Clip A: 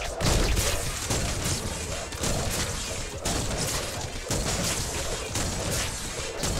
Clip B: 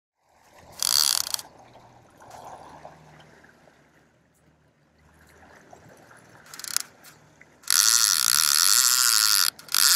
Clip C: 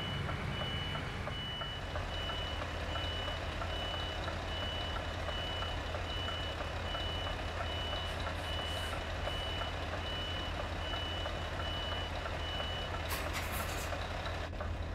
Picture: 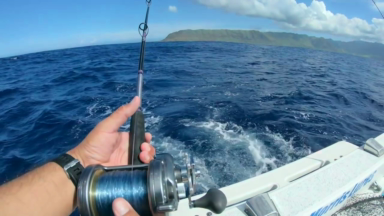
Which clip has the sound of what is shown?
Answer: B